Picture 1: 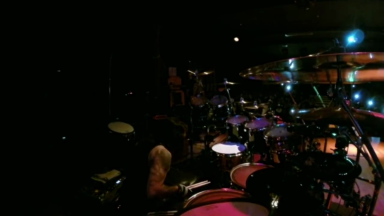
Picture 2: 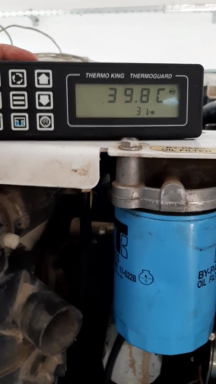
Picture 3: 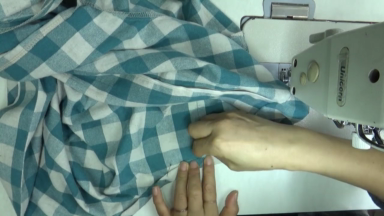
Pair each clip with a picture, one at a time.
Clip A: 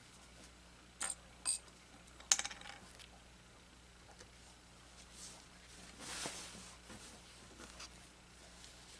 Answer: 3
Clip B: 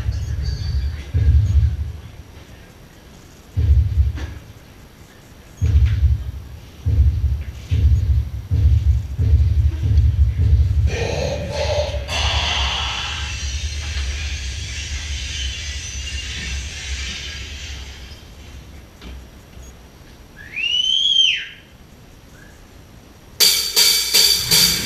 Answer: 1